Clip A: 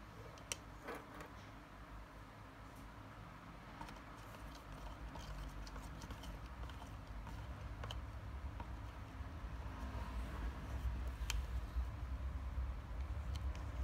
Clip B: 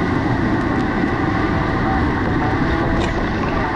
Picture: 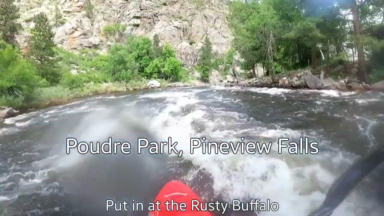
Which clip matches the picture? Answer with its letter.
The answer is B